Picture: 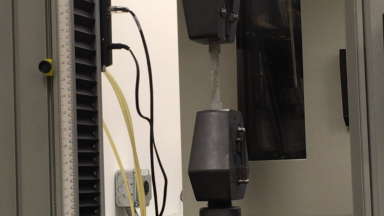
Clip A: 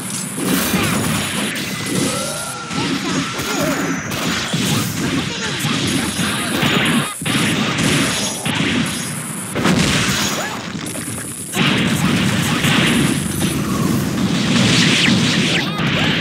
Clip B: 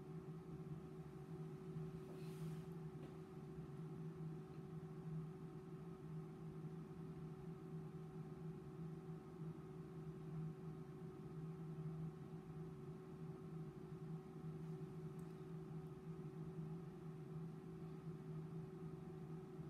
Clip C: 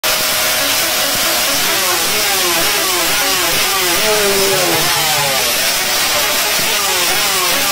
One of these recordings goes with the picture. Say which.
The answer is B